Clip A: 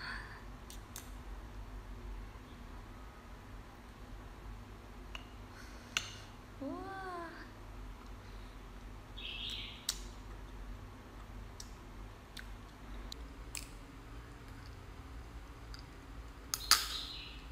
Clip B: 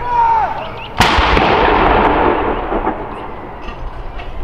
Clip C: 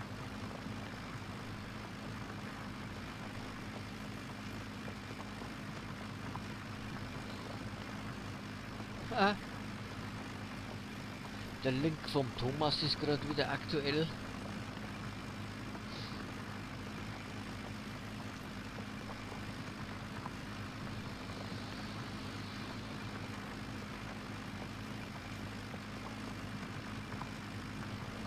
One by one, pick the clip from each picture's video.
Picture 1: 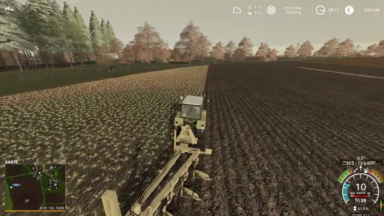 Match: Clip C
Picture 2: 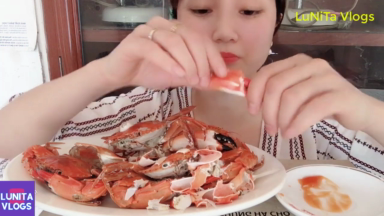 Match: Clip A